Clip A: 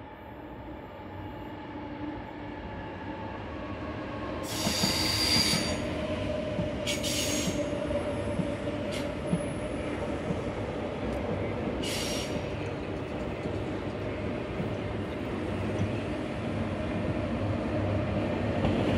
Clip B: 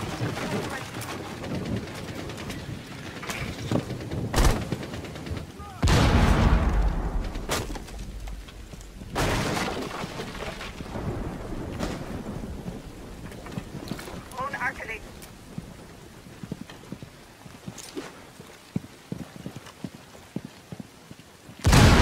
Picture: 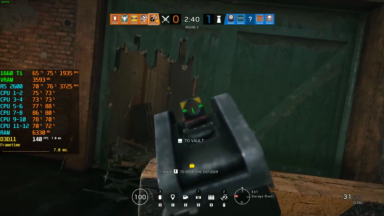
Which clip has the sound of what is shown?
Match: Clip B